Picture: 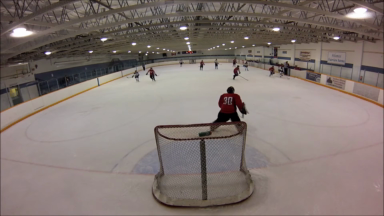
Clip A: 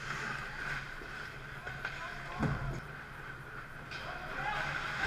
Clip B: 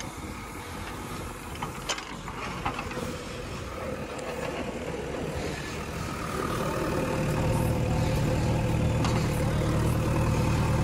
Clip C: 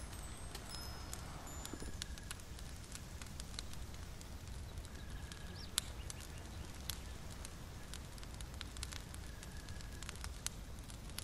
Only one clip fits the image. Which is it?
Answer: A